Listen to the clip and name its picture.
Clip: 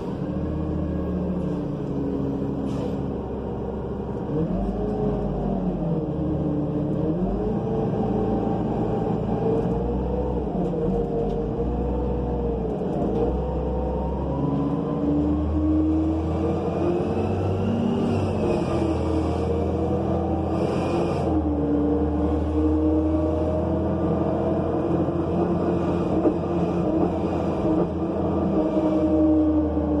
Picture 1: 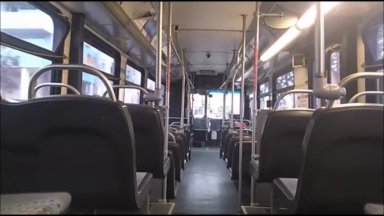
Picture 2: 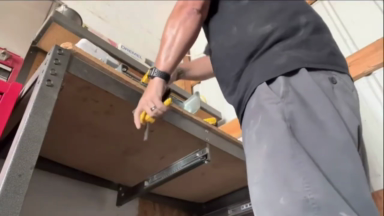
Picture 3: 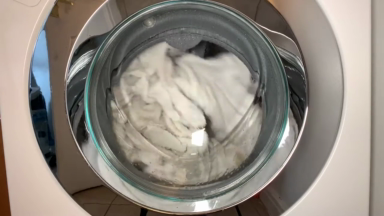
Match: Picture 1